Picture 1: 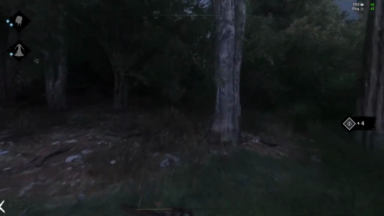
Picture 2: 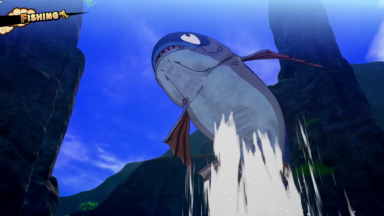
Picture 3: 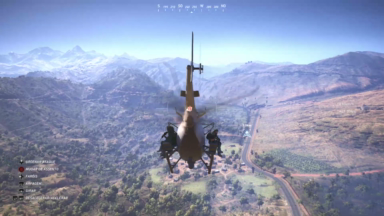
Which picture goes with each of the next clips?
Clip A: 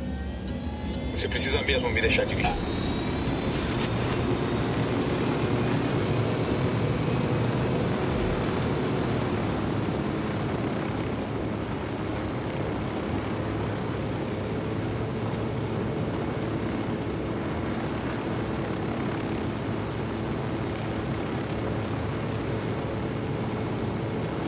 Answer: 3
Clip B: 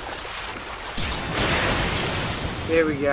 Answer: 2